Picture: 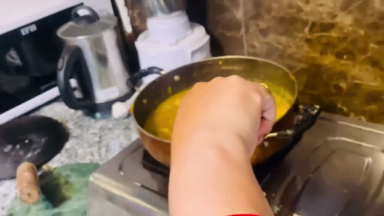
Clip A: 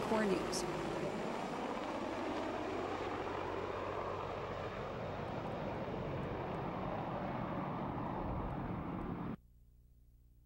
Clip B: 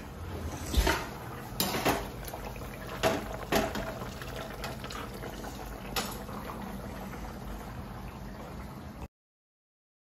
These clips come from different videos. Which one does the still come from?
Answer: B